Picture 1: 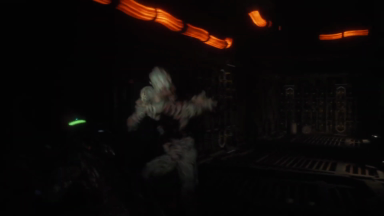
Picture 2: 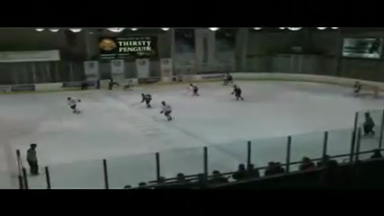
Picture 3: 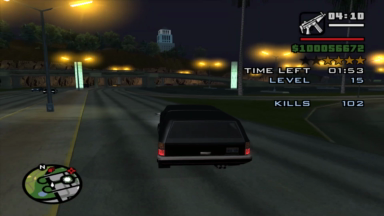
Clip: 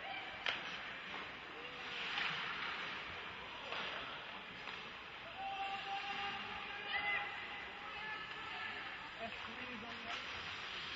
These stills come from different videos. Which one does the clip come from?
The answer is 2